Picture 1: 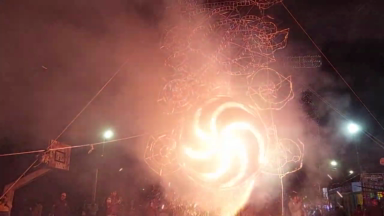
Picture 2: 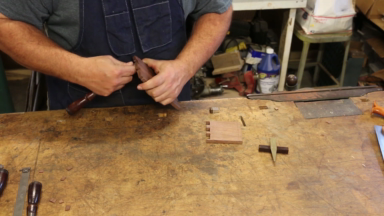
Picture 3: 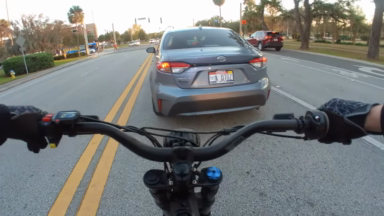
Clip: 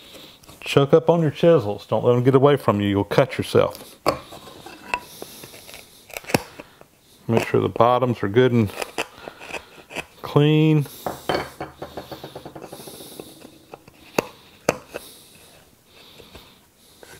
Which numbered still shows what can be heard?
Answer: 2